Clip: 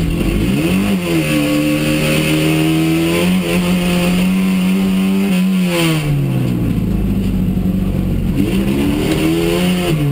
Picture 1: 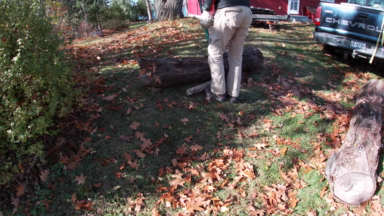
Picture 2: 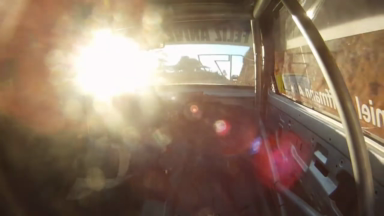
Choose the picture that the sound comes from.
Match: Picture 2